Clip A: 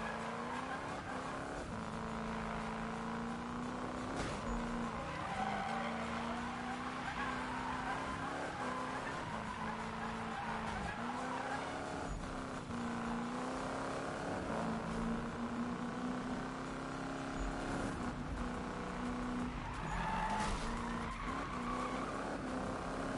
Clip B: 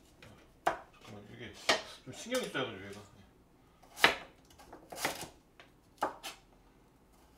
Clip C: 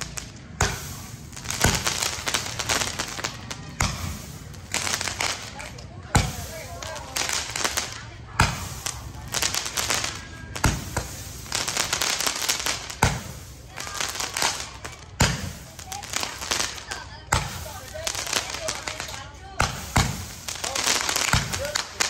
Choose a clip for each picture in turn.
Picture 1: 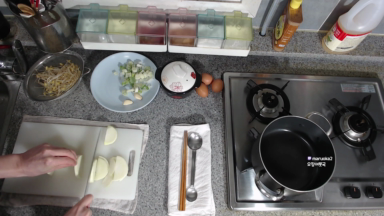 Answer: B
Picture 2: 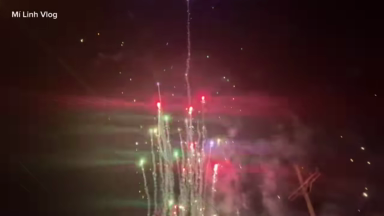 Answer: C